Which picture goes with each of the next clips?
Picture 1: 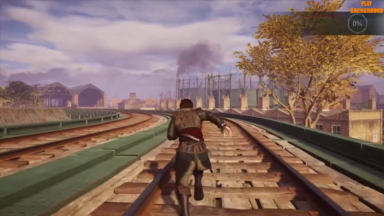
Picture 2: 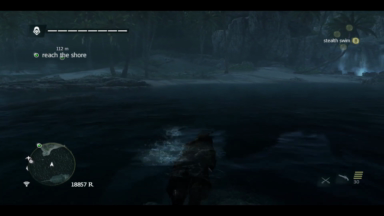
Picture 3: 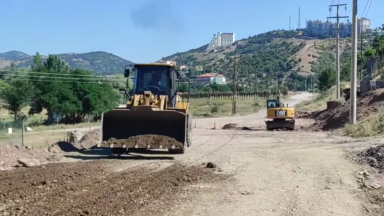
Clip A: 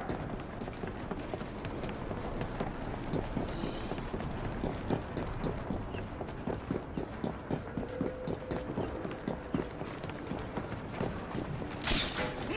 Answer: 1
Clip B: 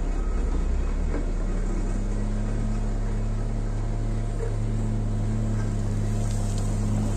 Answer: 3